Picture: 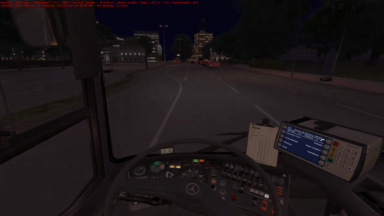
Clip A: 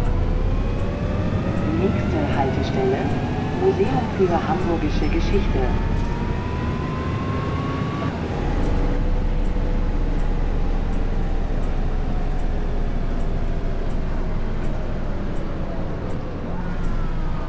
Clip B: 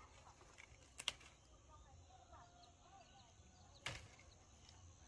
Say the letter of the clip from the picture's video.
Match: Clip A